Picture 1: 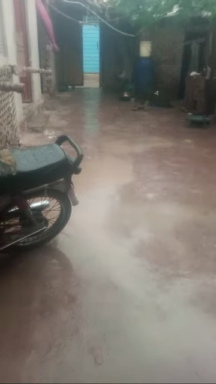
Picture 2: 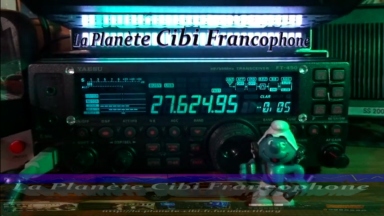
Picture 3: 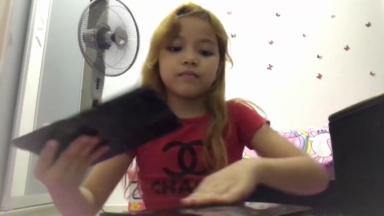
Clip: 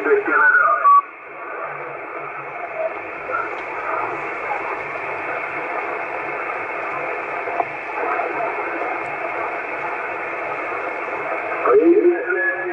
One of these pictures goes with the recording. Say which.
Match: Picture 2